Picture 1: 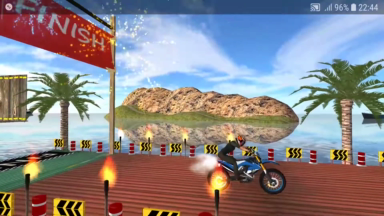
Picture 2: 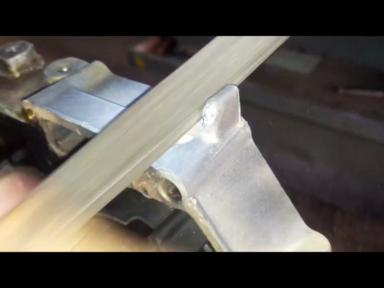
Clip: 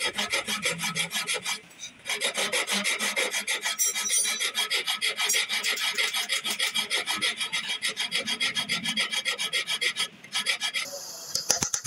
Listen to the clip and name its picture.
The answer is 2